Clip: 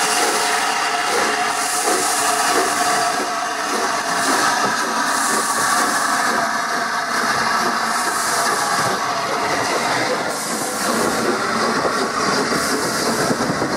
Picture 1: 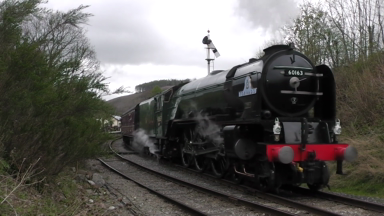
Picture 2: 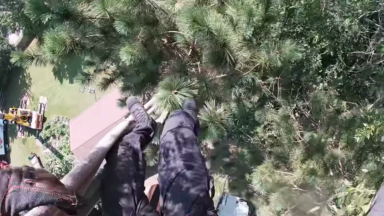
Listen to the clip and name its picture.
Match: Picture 1